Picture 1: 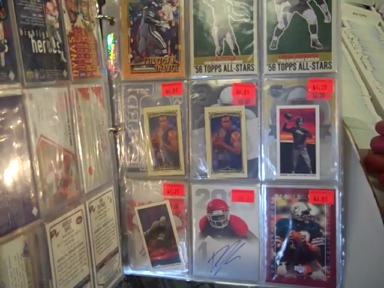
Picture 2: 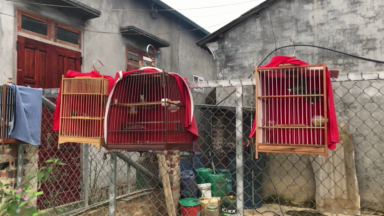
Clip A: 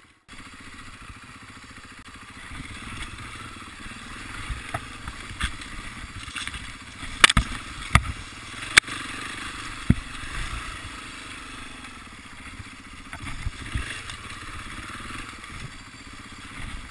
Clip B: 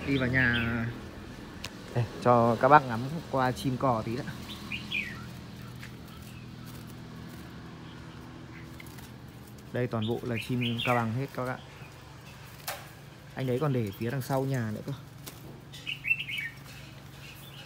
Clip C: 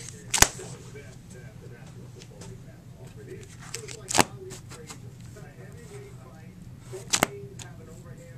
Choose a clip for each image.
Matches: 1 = C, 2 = B